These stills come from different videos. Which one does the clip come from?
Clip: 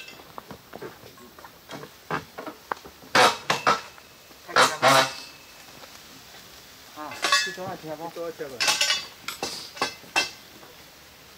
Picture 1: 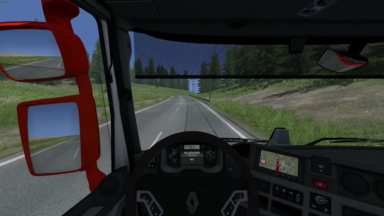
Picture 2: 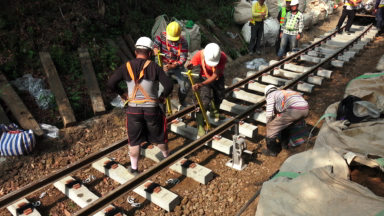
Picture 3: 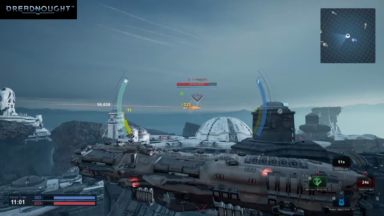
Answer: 2